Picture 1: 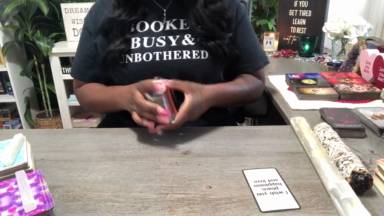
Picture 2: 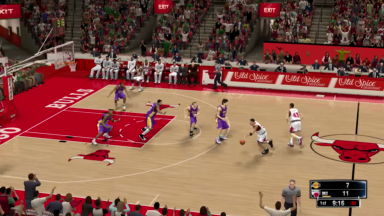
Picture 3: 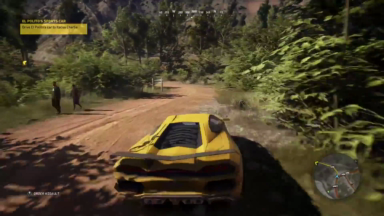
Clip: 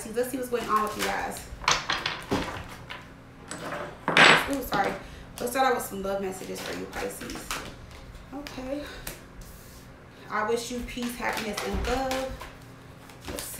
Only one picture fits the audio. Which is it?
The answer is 1